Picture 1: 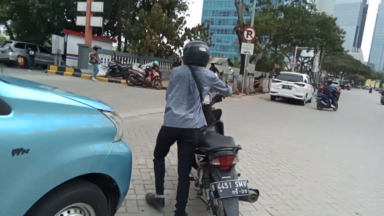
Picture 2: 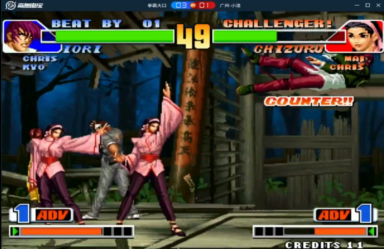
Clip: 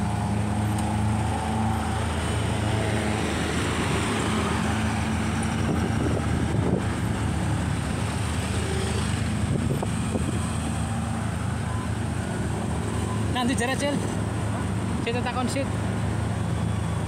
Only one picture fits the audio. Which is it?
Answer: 1